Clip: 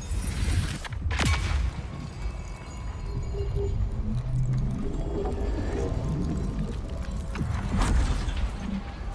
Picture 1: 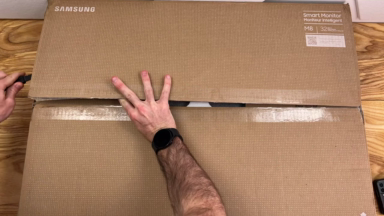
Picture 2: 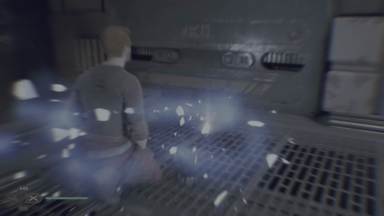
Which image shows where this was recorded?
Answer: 2